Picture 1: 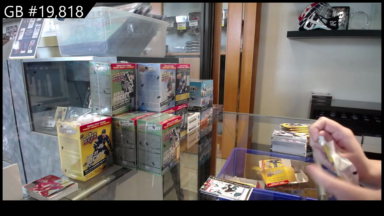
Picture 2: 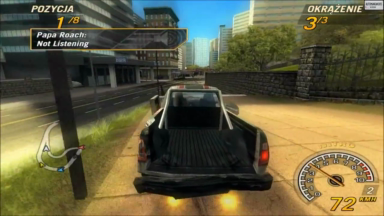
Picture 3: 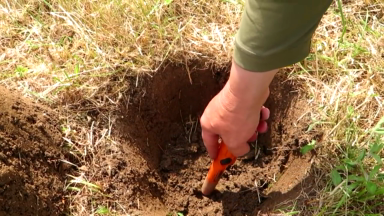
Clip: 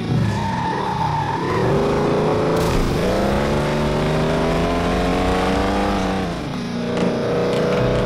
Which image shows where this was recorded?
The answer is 2